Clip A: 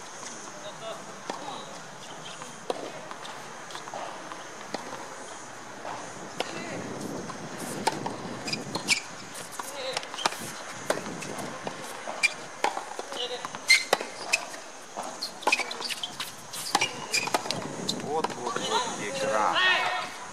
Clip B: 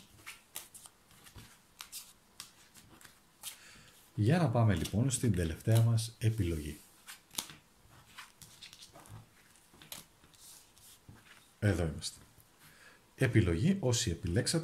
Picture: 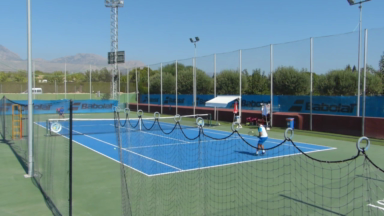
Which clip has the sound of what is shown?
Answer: A